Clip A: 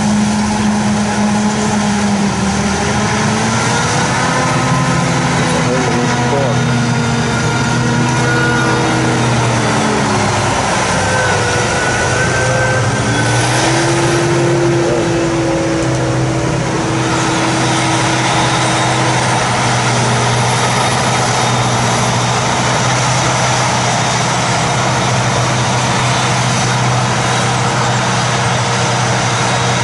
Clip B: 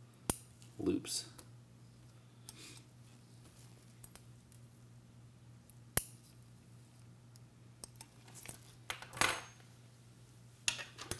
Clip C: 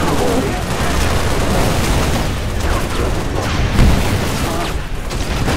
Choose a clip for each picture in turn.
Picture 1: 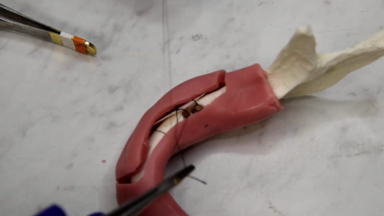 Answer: B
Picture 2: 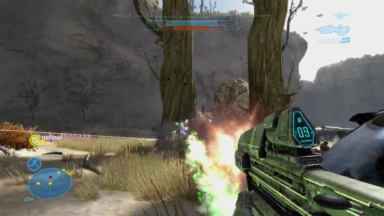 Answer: C